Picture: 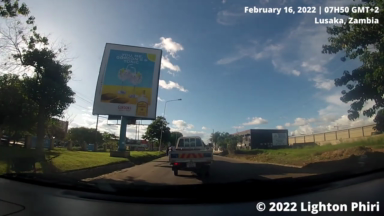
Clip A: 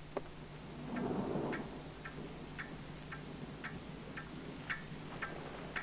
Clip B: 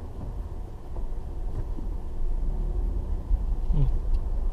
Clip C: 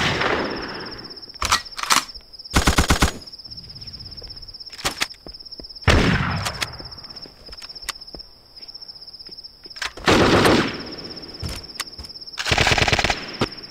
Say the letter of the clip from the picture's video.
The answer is B